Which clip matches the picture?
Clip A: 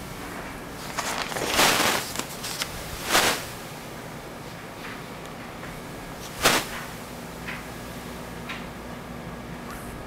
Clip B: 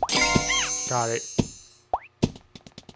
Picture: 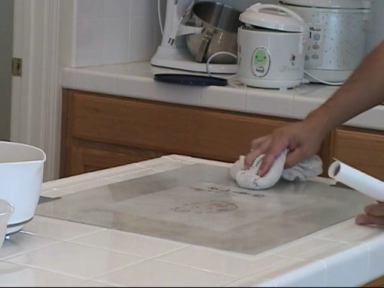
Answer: A